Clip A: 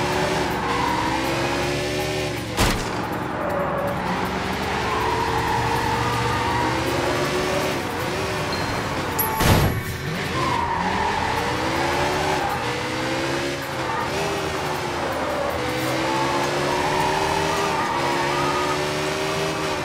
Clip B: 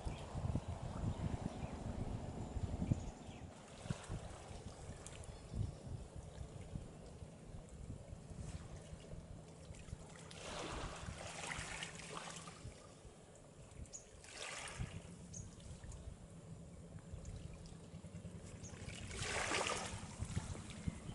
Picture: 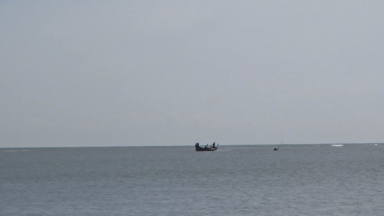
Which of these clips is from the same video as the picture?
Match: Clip B